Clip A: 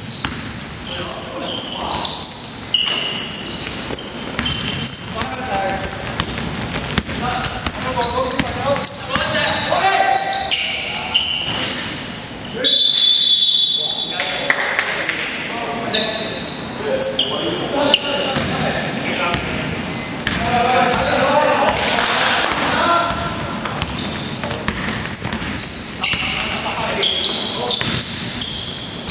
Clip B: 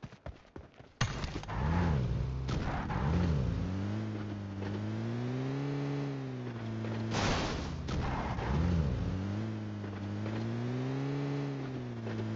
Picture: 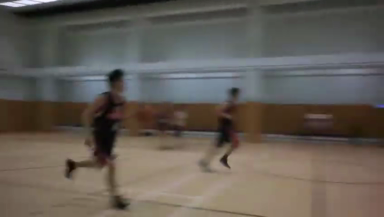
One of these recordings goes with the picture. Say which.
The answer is A